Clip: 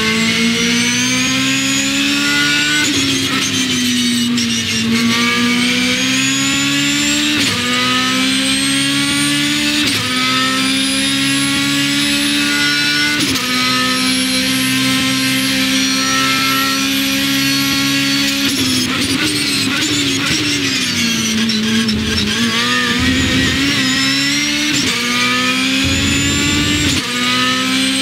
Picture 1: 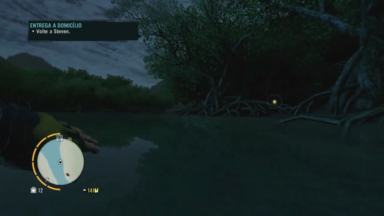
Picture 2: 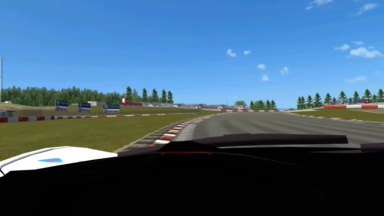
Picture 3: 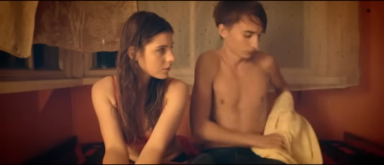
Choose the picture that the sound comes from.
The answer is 2